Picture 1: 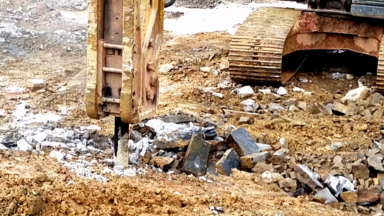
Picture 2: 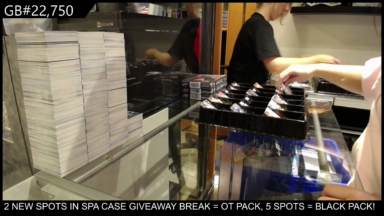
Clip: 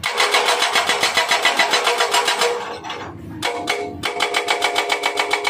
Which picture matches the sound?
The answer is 1